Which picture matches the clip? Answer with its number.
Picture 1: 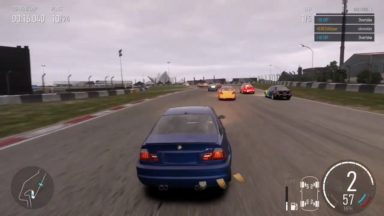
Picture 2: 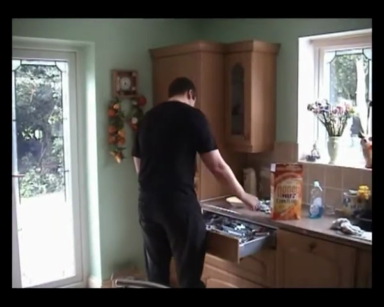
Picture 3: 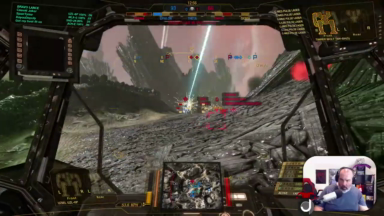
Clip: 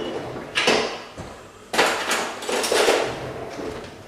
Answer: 2